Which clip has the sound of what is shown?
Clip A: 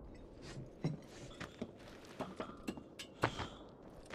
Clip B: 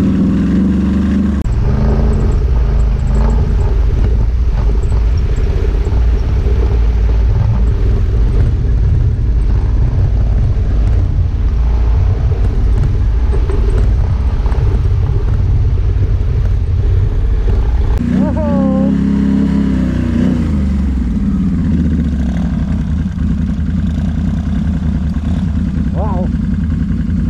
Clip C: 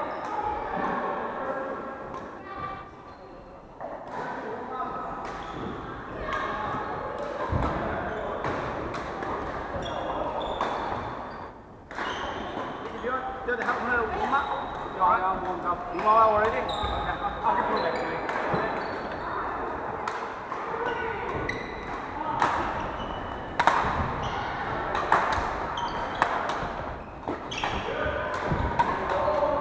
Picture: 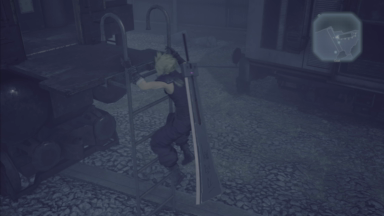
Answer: A